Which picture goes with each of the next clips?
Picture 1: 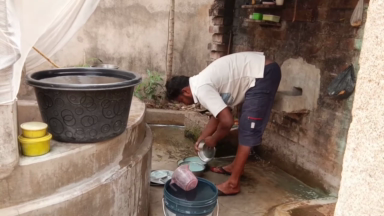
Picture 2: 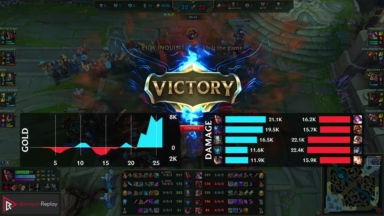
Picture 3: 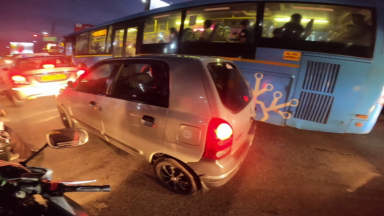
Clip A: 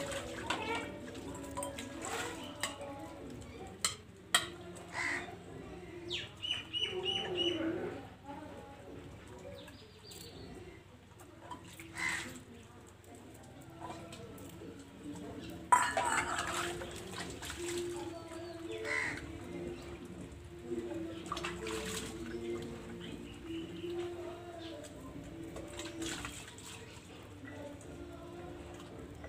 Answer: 1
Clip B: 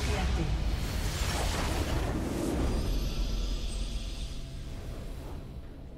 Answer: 2